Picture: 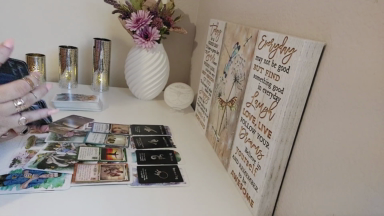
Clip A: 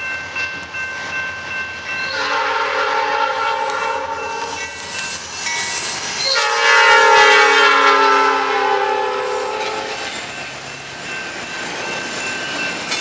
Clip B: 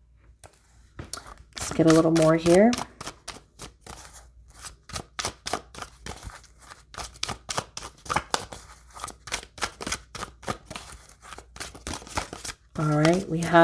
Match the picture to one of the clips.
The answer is B